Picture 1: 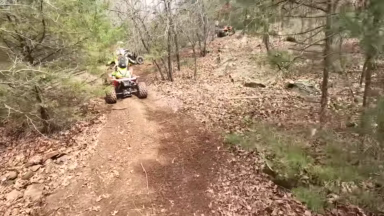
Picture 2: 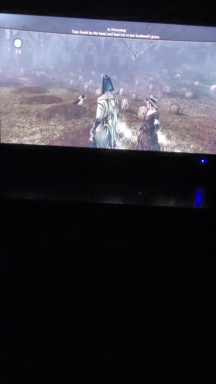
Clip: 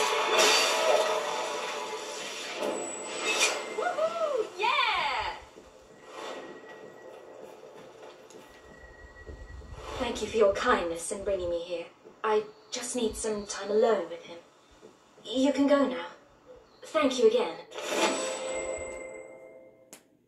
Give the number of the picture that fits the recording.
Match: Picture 2